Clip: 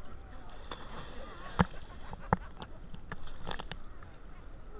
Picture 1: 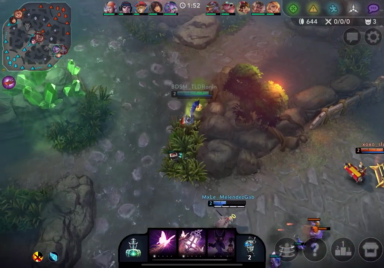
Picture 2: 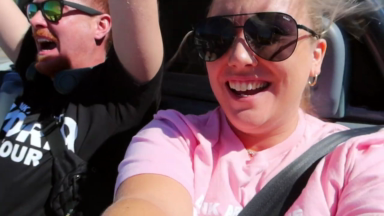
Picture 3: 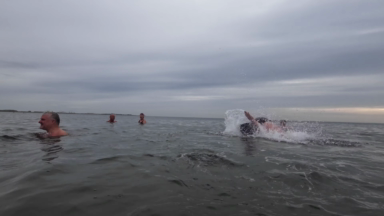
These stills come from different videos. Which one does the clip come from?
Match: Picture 3